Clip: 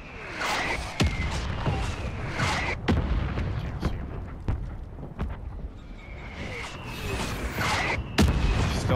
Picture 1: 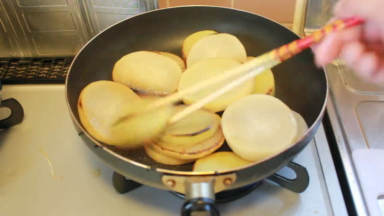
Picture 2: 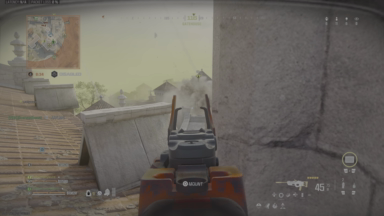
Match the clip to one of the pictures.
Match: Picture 2